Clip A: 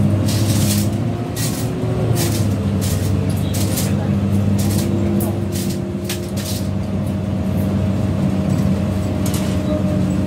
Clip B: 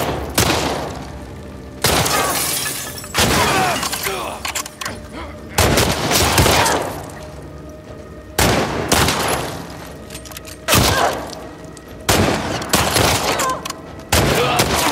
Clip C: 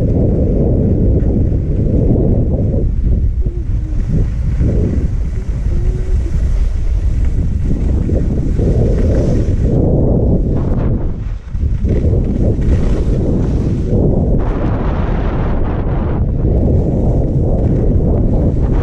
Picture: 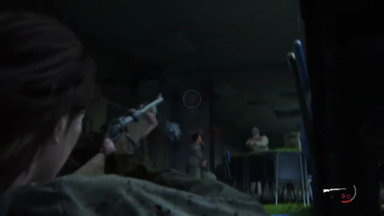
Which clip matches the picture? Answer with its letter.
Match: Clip B